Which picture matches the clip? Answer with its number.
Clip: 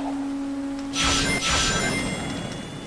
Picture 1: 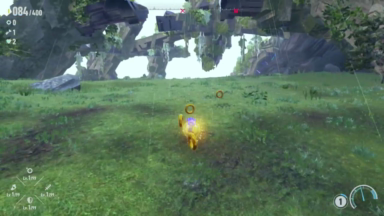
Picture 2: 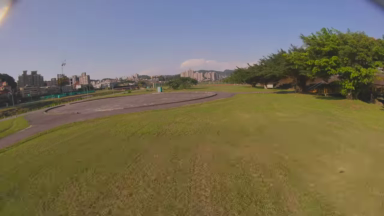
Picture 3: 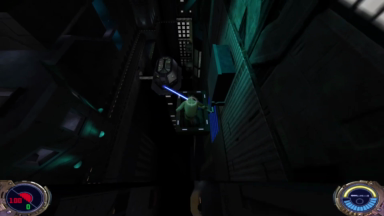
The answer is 1